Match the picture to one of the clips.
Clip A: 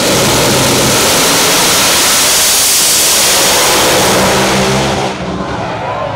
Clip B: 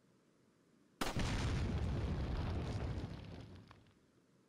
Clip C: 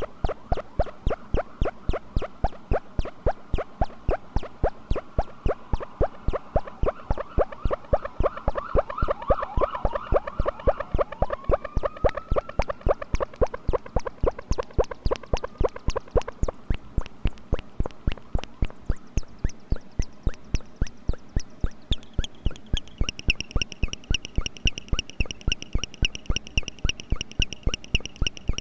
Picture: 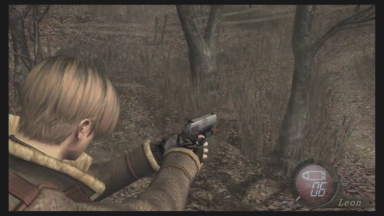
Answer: B